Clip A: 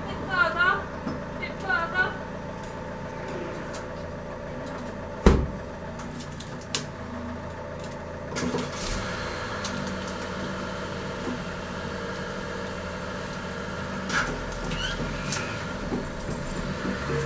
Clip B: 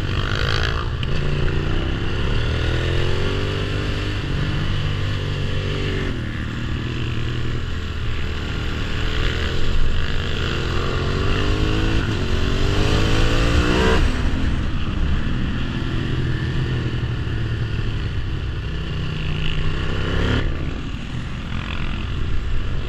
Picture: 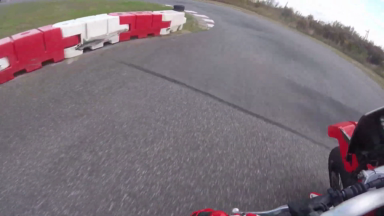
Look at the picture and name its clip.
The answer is B